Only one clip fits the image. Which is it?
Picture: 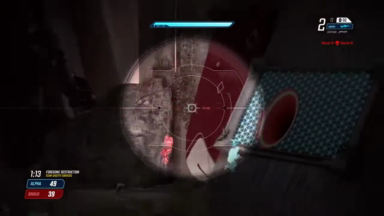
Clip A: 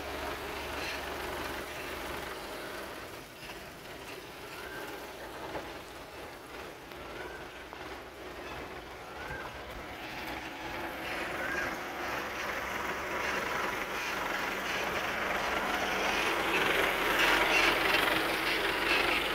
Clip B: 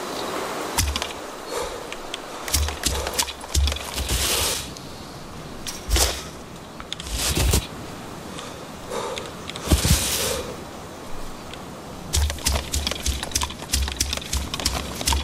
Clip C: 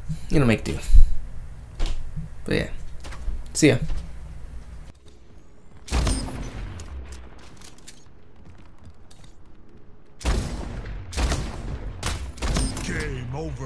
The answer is C